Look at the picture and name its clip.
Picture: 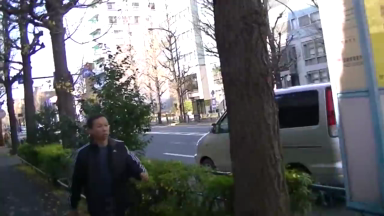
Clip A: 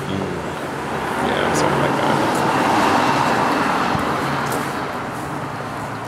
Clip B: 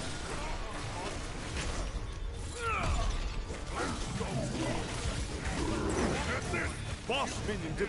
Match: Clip A